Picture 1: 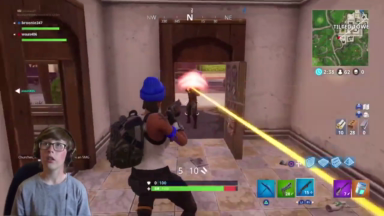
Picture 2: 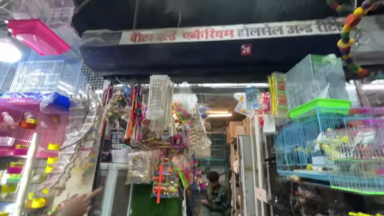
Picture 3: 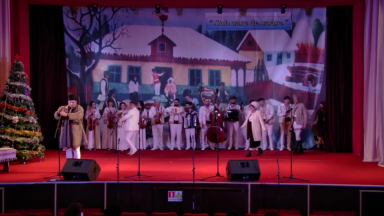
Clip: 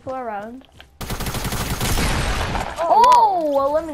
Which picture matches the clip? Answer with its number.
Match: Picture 1